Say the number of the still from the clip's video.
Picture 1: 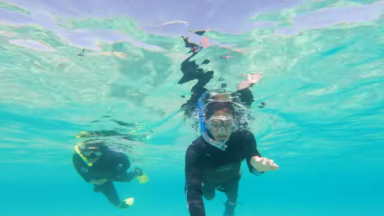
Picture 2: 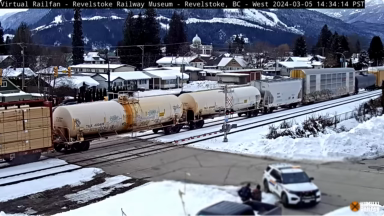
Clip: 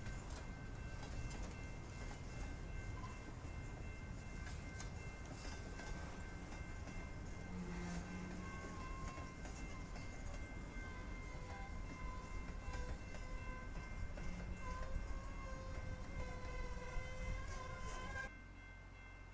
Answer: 2